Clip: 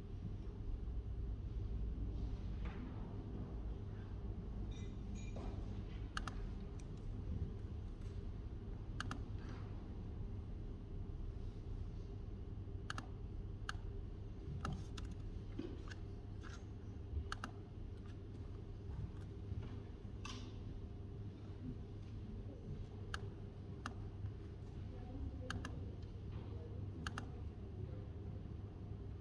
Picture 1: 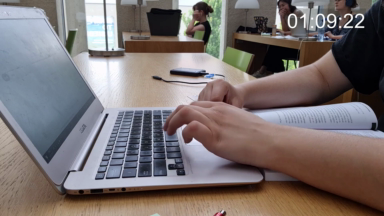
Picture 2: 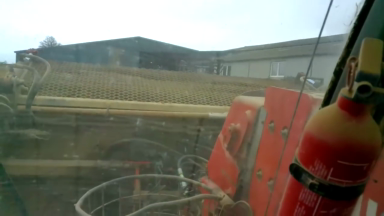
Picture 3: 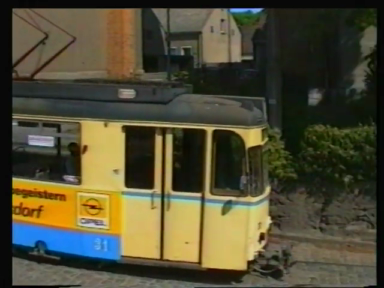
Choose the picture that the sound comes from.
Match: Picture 1